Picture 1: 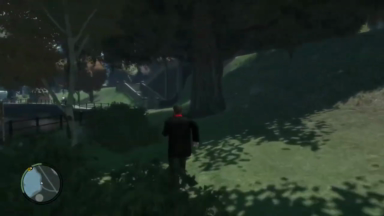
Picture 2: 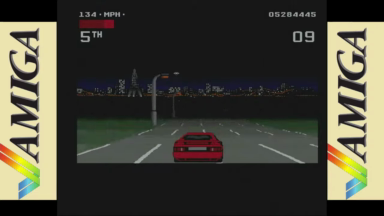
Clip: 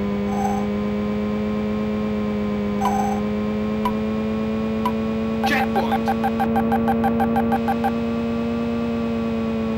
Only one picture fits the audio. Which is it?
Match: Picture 2